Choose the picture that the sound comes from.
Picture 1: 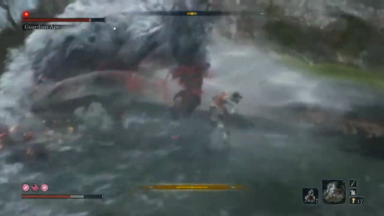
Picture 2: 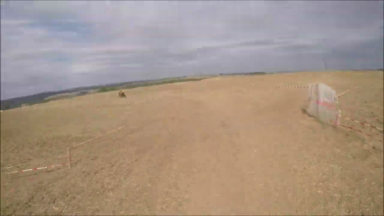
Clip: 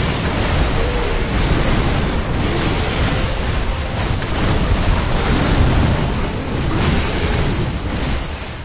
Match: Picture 1